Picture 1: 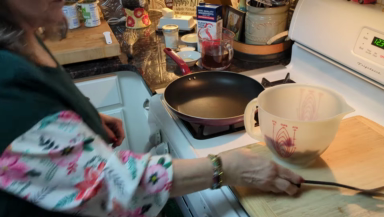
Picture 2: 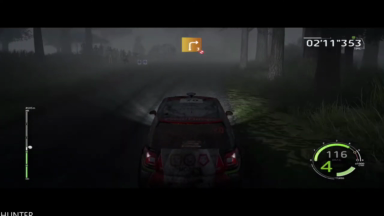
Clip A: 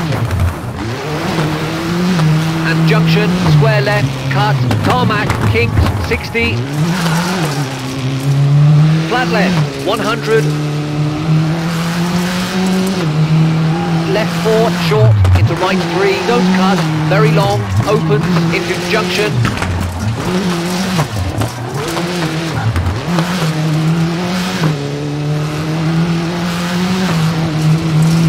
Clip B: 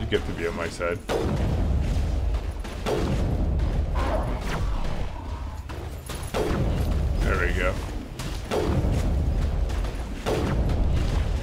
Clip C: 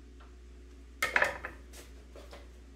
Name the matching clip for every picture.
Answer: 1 C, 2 A